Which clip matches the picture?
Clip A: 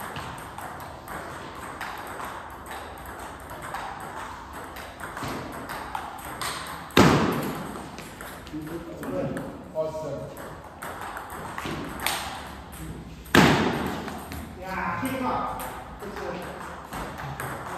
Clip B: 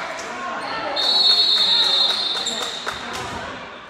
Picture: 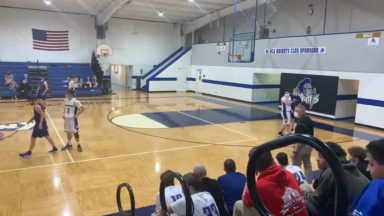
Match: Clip B